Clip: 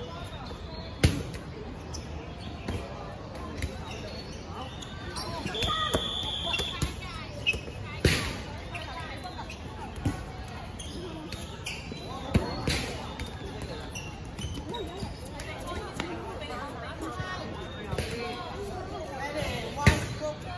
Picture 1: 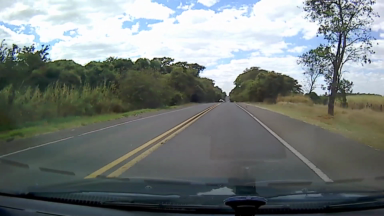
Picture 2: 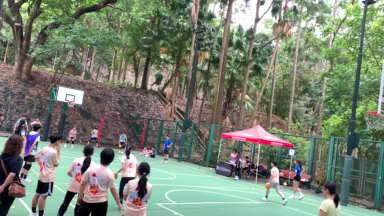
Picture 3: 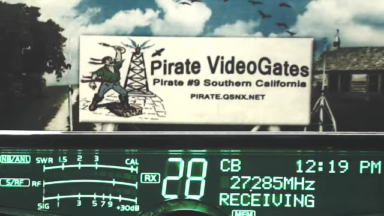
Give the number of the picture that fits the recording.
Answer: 2